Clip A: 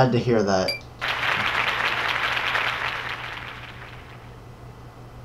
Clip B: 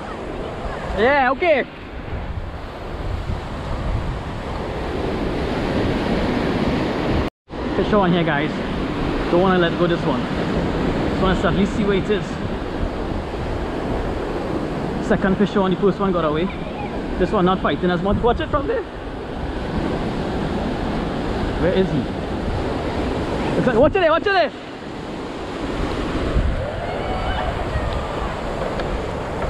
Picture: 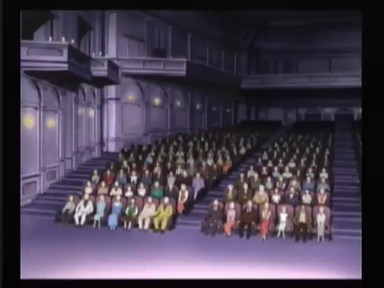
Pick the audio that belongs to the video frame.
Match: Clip A